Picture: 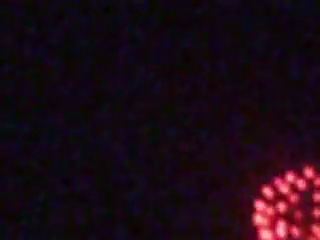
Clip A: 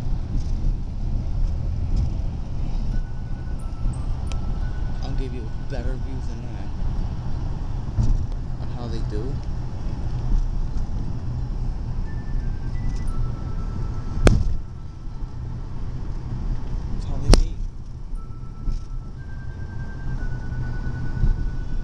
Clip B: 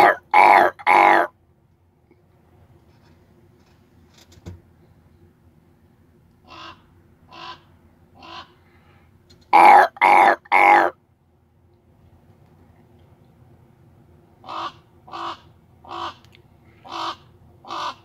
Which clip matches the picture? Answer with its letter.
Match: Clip A